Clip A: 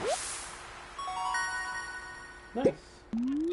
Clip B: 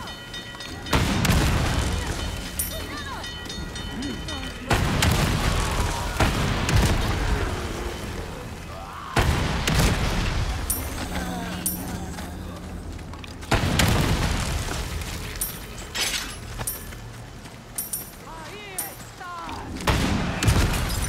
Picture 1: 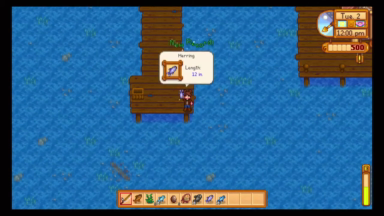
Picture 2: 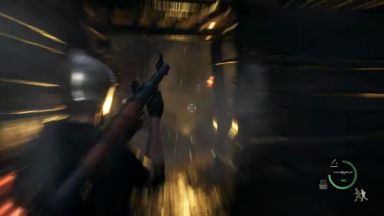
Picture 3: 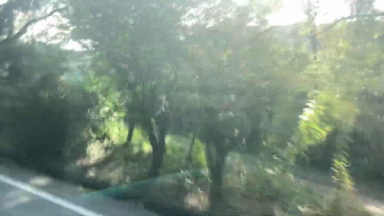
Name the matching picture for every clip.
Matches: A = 1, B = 2